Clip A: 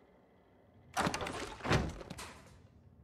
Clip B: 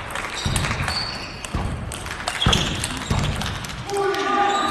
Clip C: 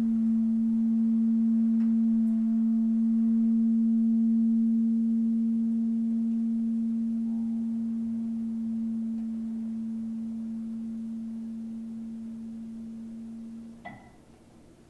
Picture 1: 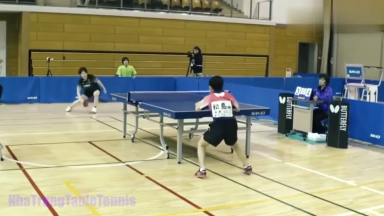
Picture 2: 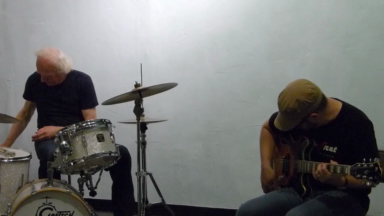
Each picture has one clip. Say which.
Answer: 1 B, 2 C